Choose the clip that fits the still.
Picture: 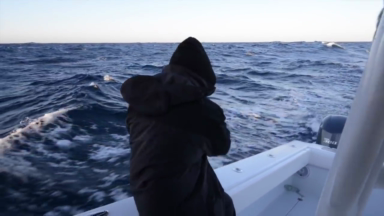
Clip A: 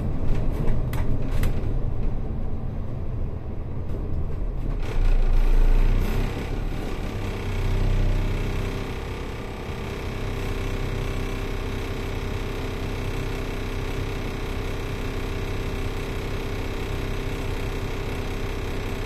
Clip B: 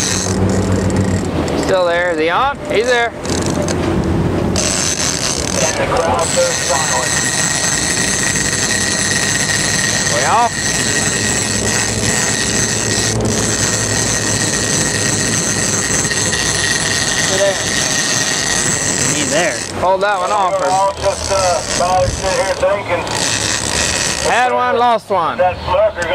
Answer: B